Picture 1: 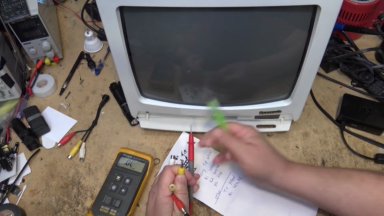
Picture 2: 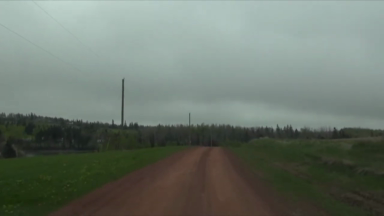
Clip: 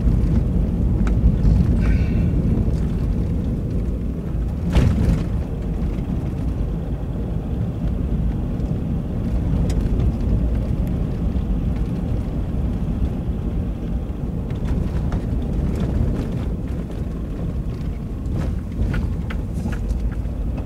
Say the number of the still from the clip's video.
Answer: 2